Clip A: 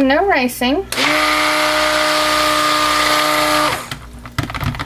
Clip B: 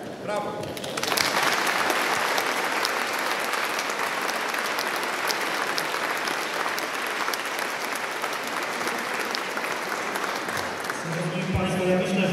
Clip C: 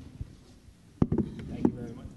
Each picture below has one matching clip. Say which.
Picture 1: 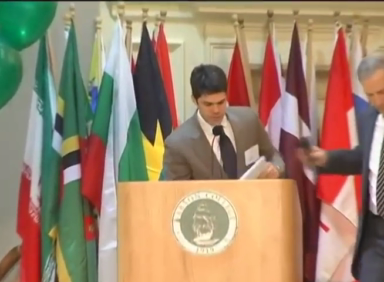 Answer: C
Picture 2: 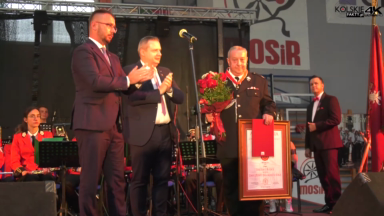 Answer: B